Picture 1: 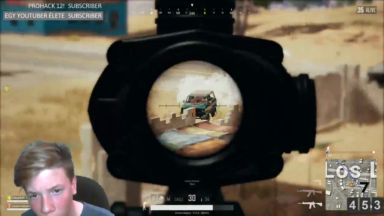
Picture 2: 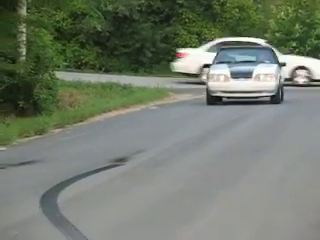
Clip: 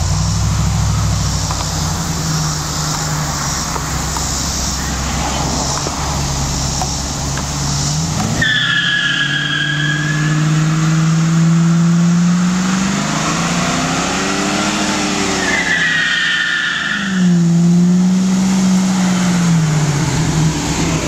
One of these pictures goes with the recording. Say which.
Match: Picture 2